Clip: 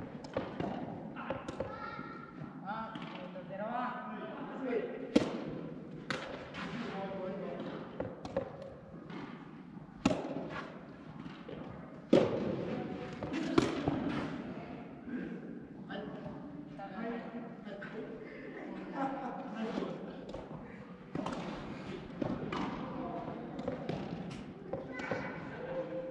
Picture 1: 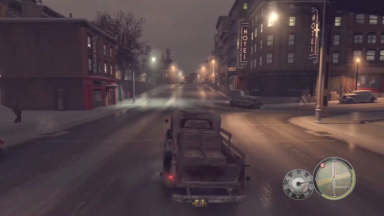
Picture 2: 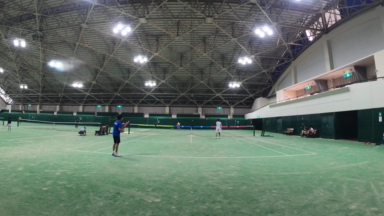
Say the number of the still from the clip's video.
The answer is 2